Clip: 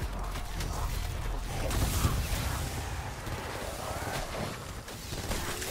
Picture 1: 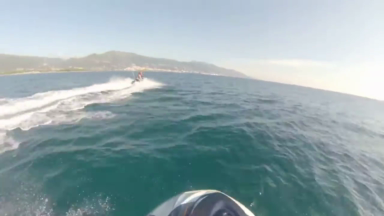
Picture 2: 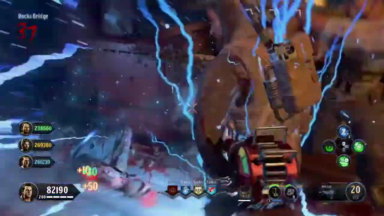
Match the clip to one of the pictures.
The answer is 2